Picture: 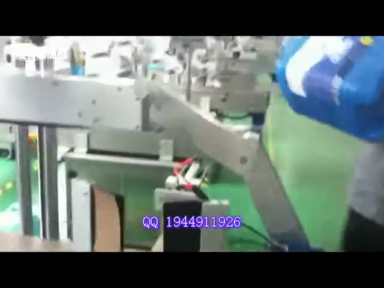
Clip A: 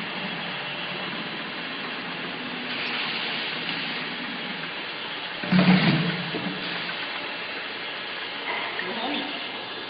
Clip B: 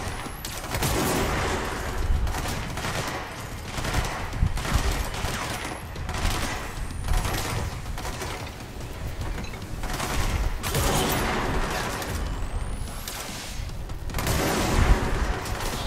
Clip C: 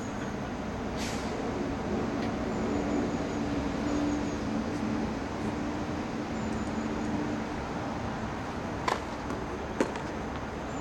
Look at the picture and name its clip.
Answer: A